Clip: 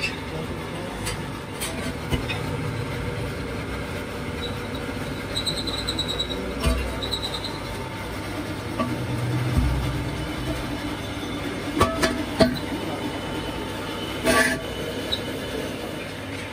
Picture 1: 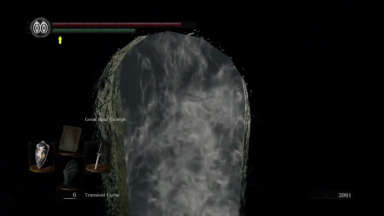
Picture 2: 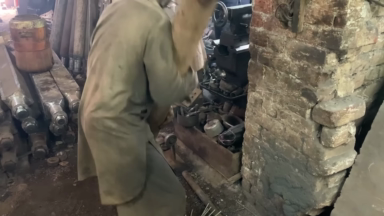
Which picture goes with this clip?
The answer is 2